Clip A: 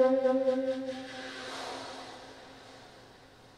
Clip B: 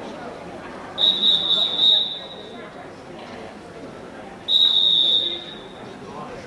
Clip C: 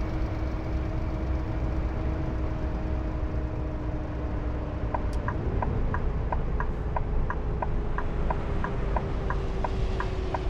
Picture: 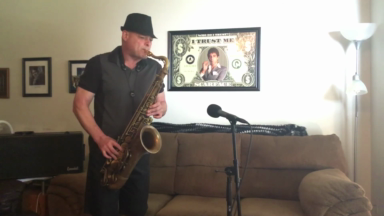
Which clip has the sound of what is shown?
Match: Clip A